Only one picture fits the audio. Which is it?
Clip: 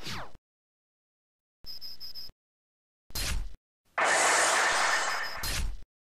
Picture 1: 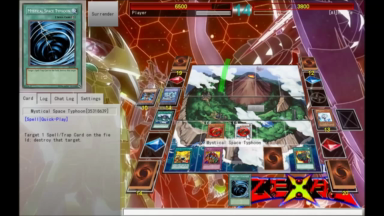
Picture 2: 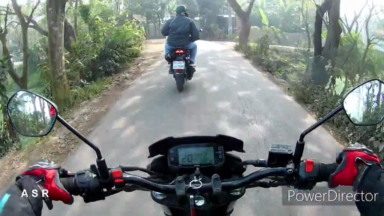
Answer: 1